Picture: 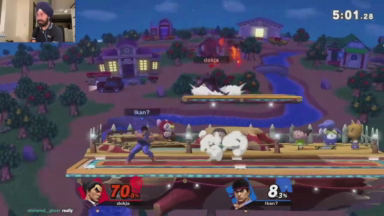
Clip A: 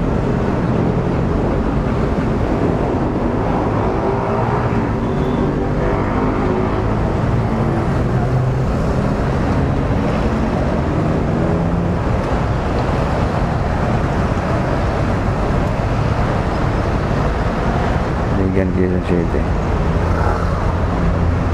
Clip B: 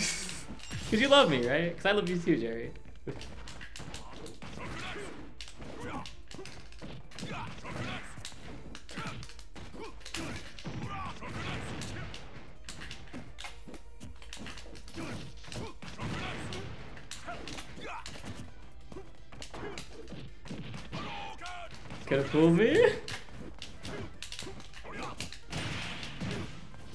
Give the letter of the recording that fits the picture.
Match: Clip B